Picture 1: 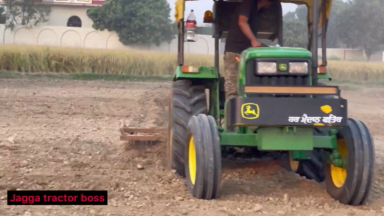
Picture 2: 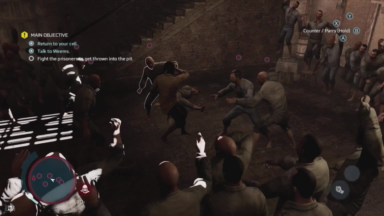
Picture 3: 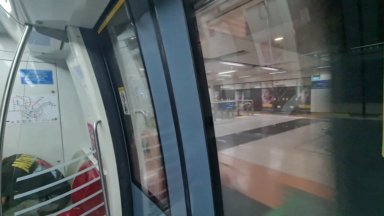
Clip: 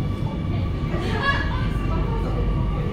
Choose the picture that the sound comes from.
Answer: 3